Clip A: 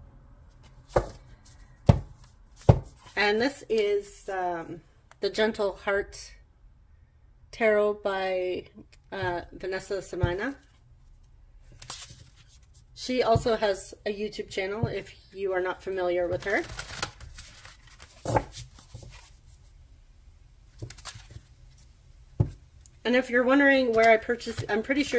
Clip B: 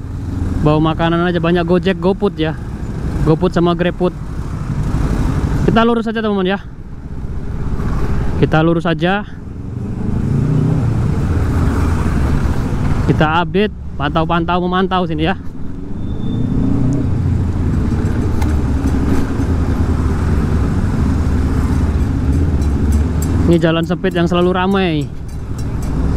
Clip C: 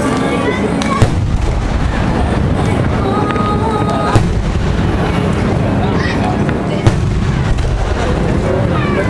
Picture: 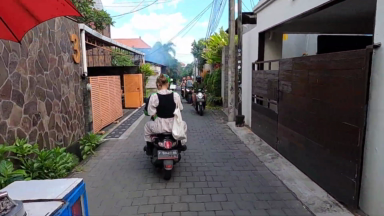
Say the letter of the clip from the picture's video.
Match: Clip B